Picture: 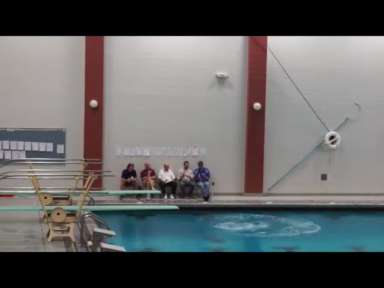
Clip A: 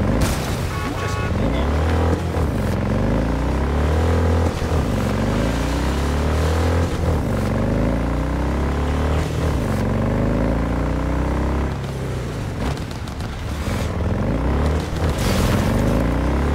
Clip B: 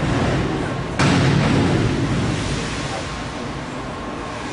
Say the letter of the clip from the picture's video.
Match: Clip B